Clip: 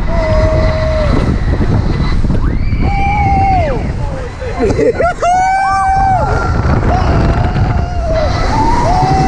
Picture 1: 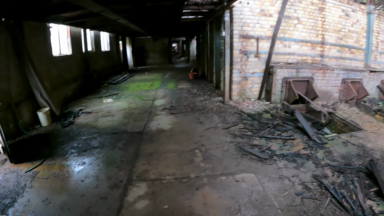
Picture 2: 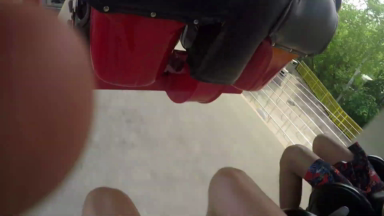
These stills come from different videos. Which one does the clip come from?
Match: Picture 2